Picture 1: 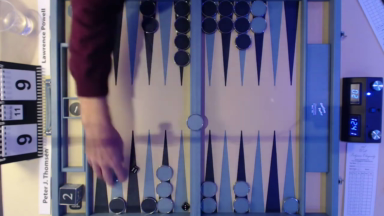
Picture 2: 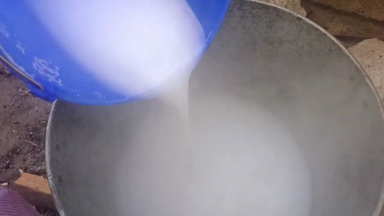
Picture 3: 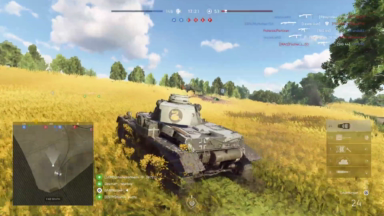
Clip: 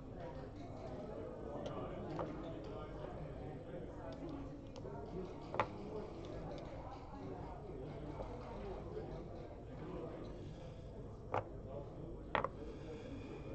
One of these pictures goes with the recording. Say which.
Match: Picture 1